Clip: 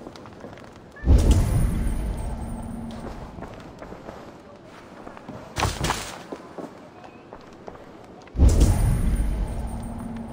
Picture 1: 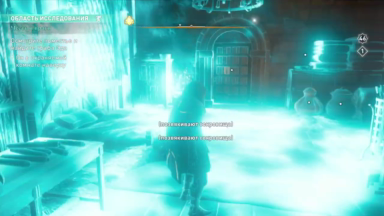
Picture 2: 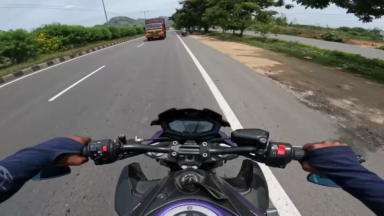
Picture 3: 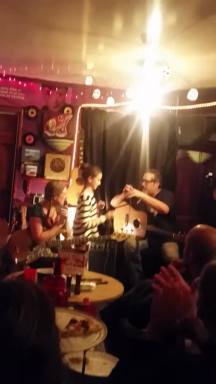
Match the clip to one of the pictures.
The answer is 1